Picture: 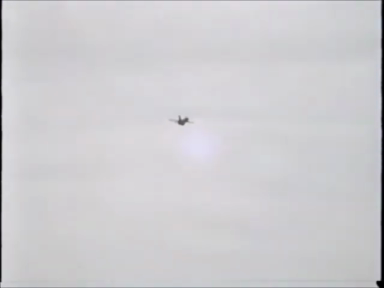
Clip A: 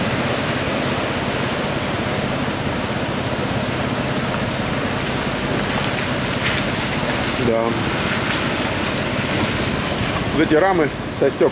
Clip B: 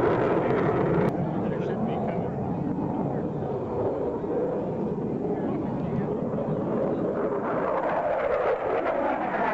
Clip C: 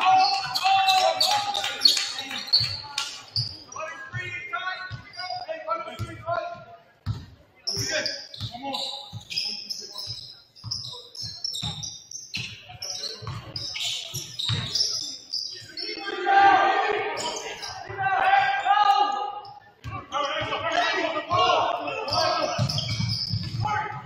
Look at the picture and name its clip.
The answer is B